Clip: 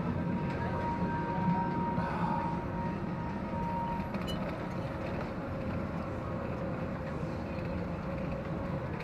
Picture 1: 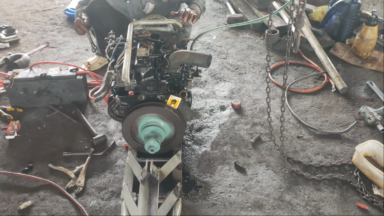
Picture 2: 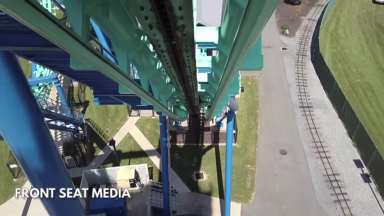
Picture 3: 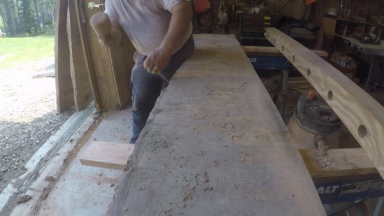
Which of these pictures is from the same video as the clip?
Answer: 2